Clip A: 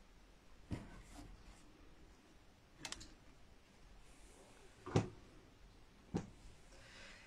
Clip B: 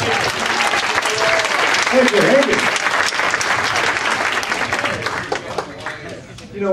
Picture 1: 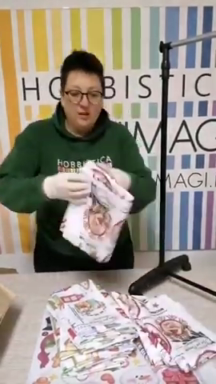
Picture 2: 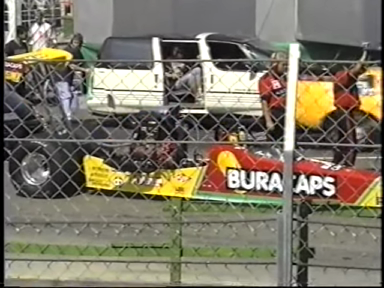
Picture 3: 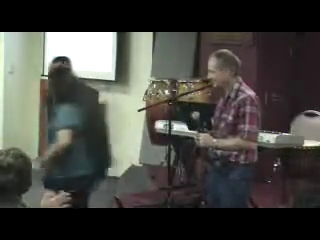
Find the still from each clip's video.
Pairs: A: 1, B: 3